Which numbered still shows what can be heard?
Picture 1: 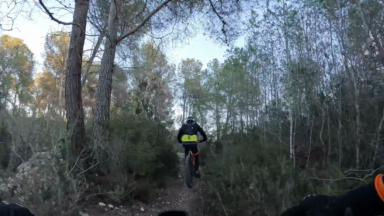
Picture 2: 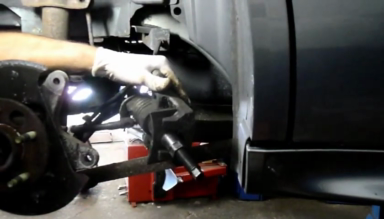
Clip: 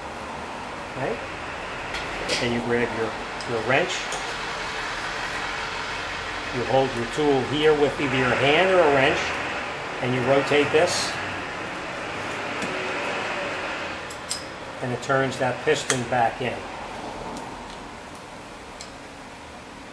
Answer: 2